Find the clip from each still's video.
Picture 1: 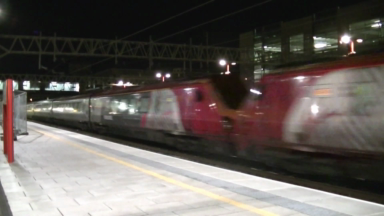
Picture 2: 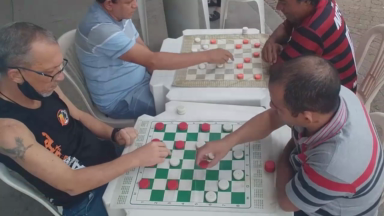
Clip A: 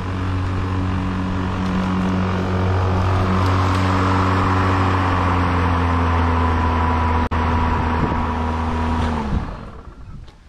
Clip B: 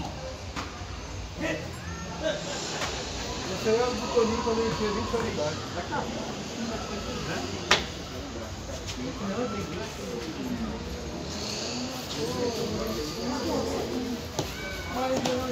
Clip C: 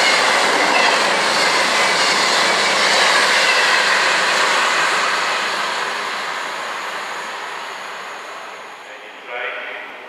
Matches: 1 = C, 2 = B